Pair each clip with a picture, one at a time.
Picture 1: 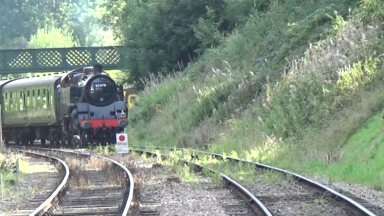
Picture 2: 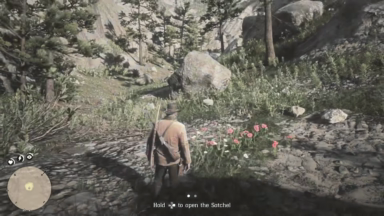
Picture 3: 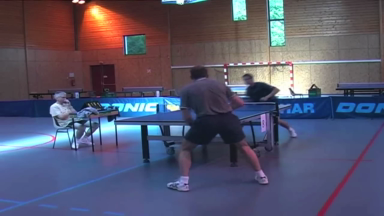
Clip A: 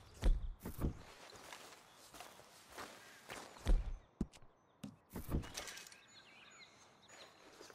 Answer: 2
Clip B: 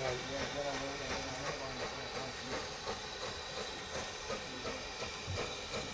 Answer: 1